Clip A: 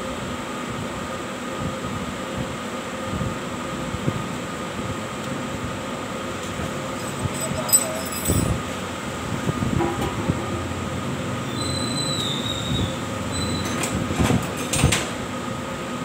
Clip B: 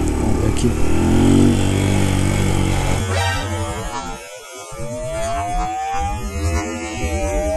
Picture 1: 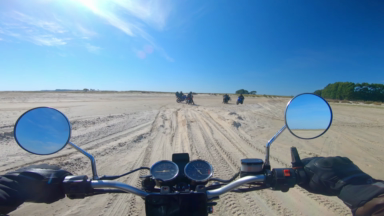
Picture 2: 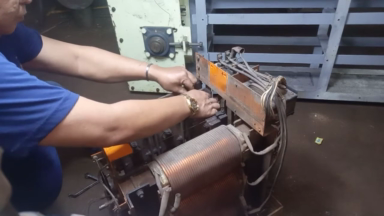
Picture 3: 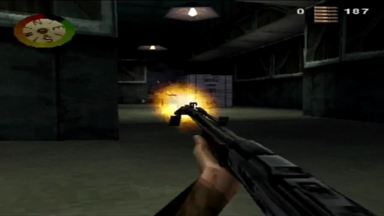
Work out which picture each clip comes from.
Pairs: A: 2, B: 1